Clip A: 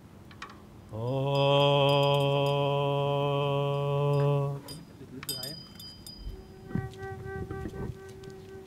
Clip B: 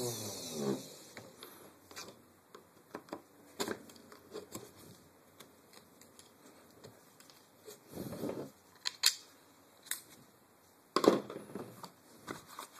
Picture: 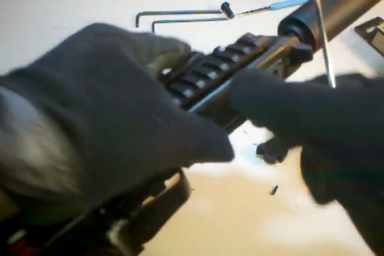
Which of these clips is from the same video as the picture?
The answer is B